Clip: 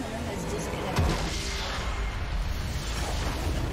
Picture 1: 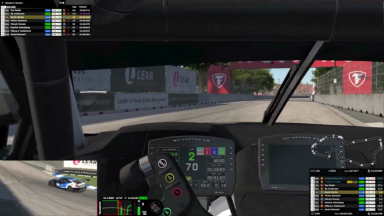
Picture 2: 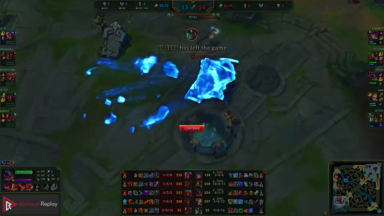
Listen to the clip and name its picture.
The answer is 2